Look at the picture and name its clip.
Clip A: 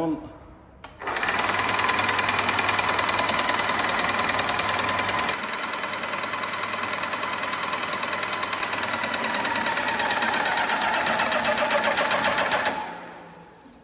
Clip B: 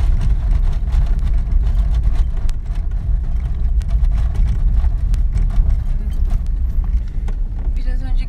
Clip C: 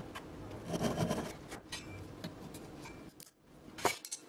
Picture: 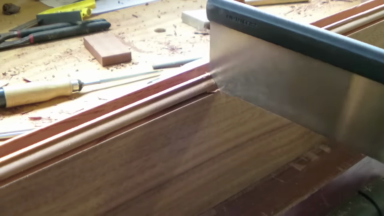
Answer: C